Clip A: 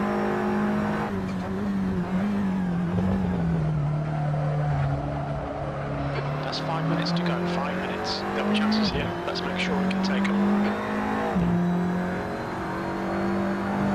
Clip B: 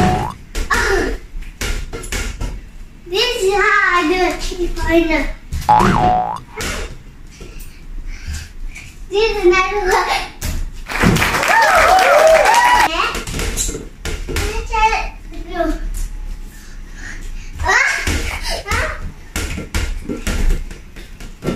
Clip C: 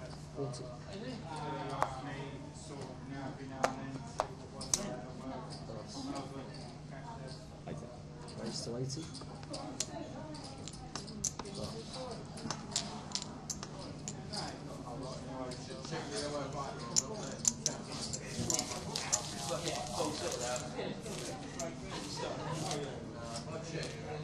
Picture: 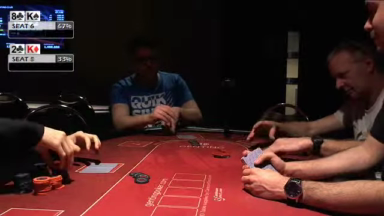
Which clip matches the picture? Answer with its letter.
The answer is C